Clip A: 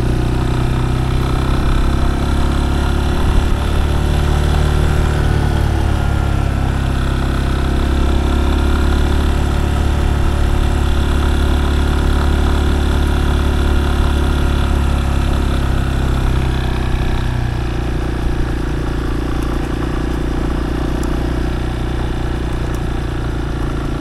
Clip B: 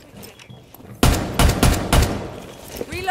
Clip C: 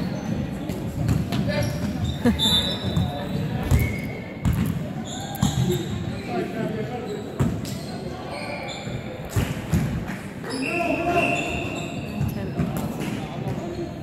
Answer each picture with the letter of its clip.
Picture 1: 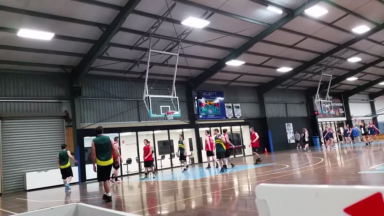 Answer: C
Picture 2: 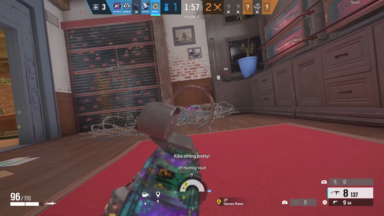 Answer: B